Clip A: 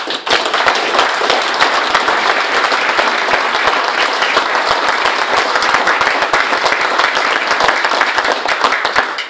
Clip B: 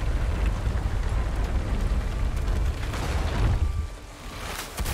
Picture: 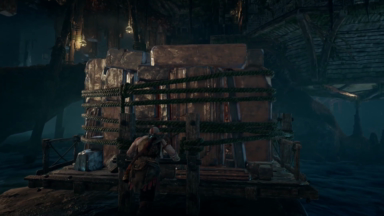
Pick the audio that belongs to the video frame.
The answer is B